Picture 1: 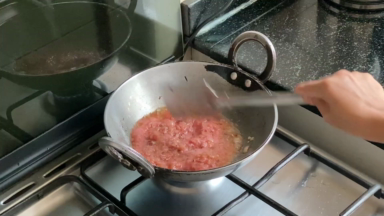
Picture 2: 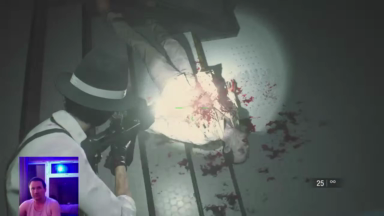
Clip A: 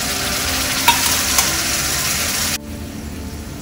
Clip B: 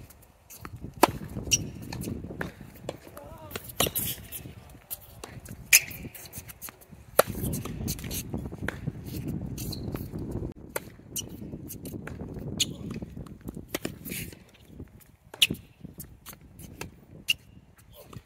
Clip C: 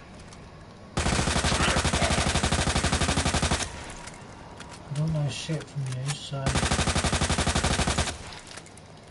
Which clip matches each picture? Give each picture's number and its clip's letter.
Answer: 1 A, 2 C